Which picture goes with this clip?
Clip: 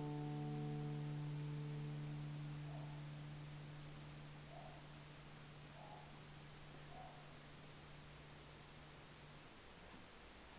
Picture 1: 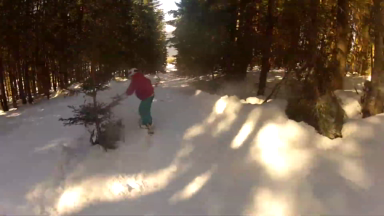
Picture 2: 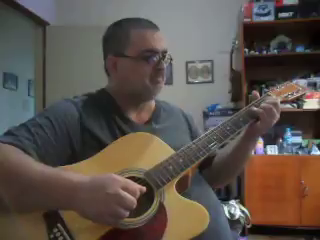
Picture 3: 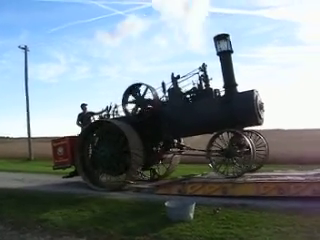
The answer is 2